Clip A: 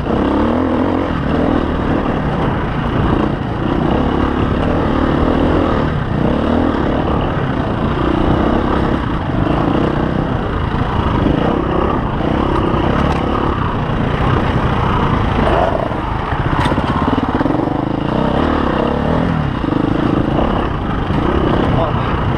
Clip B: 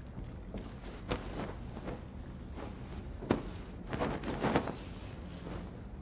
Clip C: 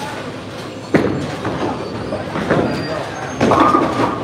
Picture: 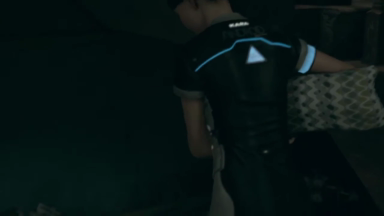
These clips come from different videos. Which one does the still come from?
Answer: B